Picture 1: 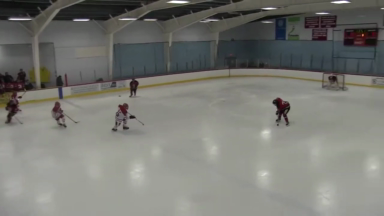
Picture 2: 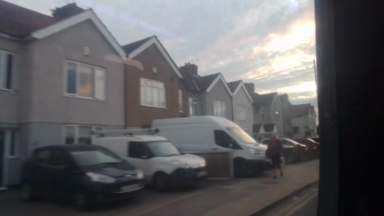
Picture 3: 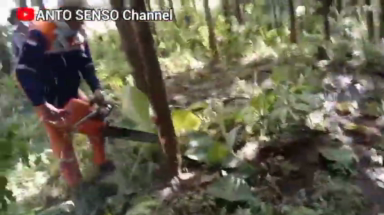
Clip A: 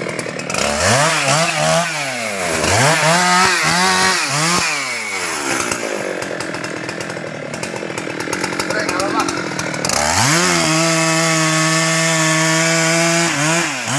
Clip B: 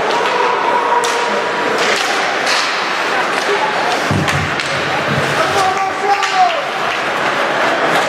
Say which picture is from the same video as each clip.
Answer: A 3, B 1